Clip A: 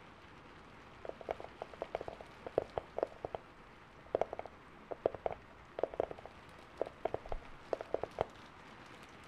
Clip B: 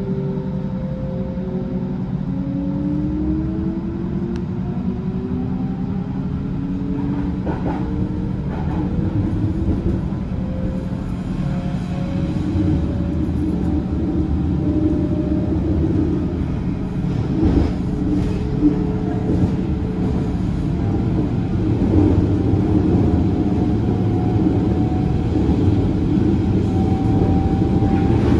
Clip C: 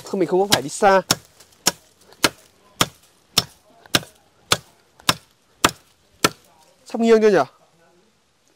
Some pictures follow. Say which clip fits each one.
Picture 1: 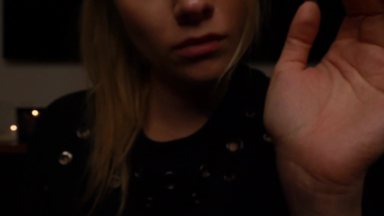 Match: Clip A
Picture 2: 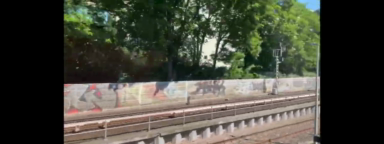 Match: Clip B